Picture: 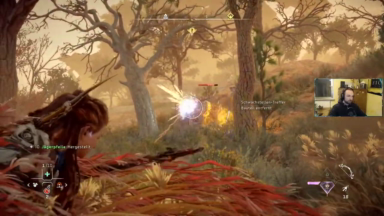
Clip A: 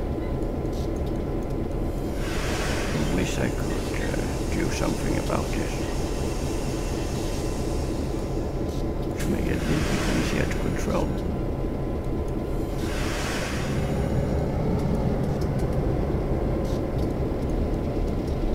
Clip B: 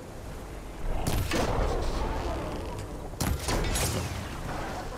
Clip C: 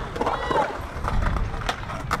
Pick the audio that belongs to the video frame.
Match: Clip B